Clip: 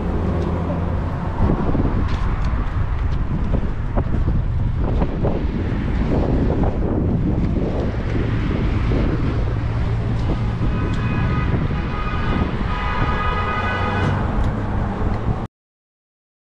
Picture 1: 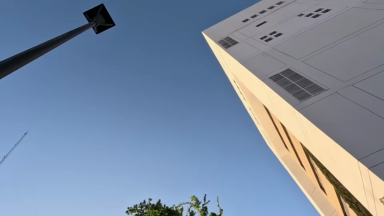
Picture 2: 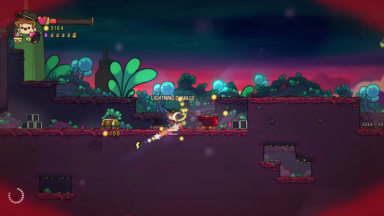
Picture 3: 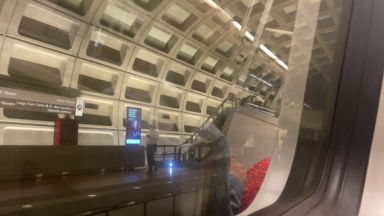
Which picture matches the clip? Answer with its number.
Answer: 1